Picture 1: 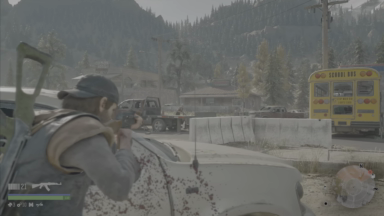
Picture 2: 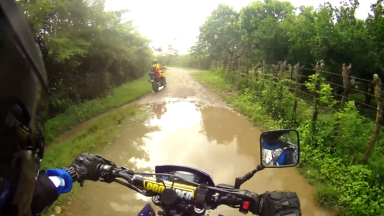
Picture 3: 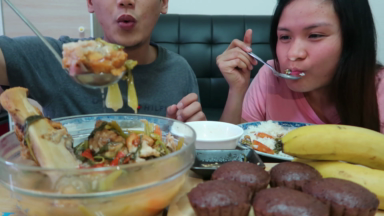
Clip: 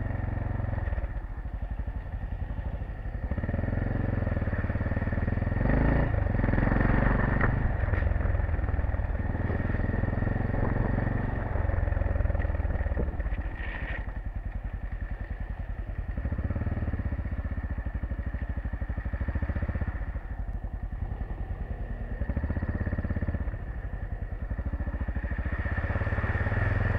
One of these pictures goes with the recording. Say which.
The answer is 2